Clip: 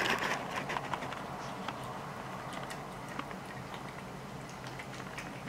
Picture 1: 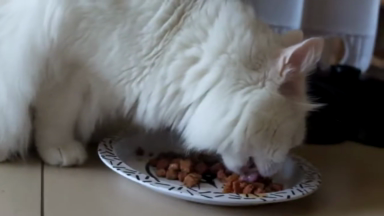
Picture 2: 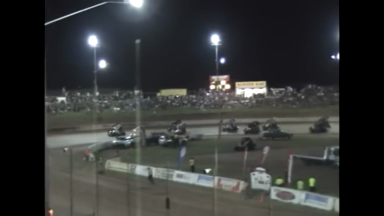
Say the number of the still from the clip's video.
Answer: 1